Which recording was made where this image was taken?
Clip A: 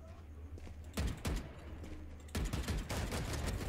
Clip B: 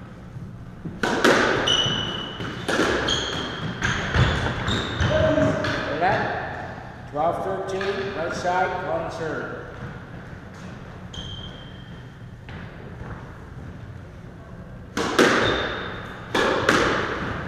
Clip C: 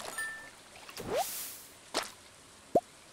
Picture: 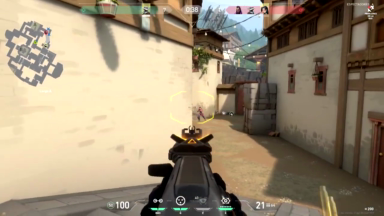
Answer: A